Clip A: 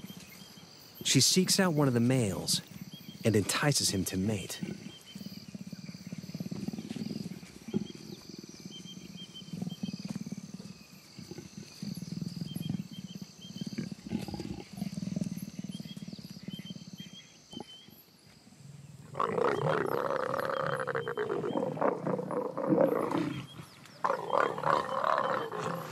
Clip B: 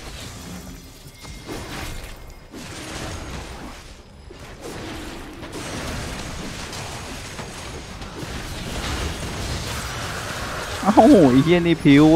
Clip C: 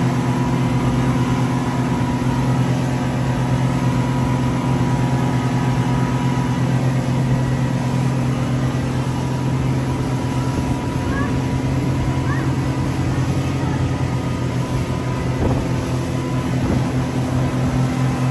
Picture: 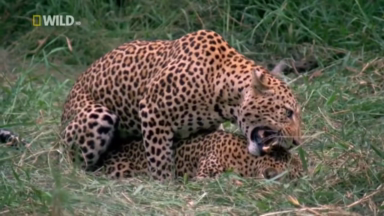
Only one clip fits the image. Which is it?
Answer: A